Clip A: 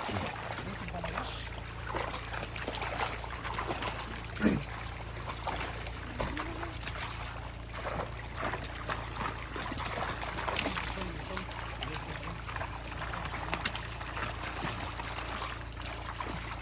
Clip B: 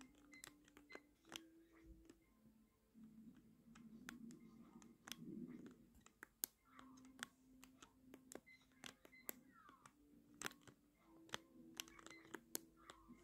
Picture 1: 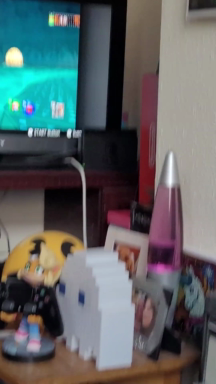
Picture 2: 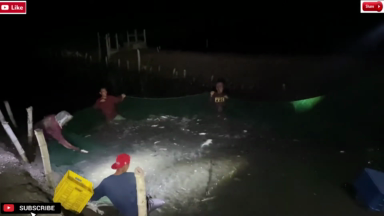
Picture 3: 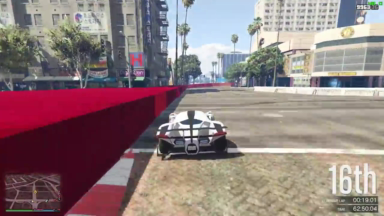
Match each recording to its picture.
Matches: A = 2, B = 1